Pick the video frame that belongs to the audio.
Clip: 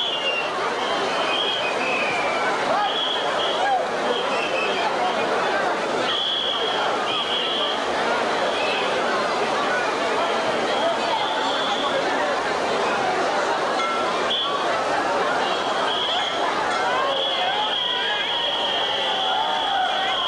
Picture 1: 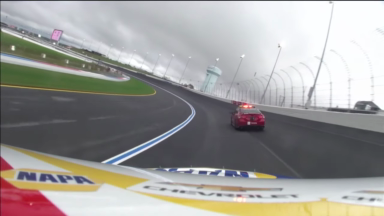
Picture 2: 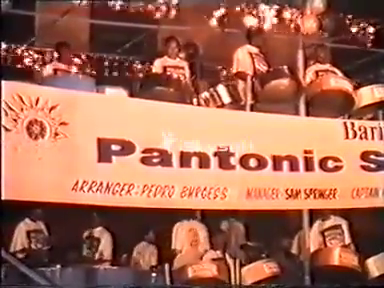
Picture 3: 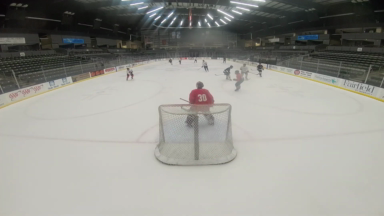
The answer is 2